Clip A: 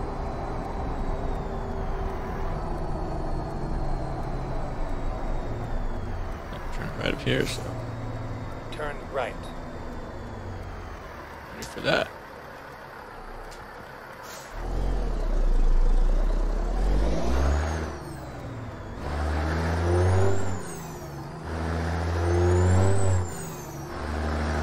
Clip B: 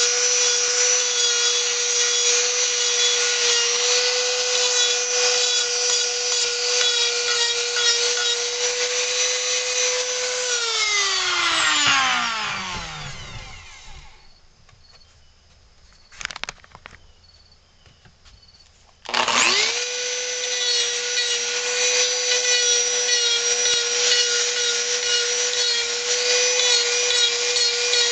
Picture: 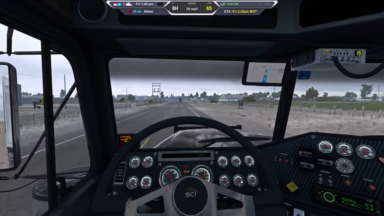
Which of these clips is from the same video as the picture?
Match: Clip A